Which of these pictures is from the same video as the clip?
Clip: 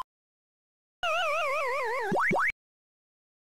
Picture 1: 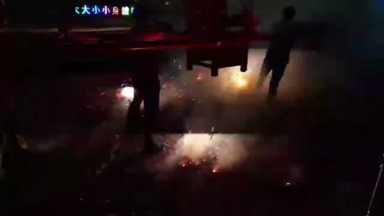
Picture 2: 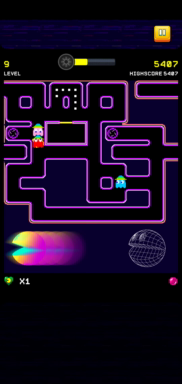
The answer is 2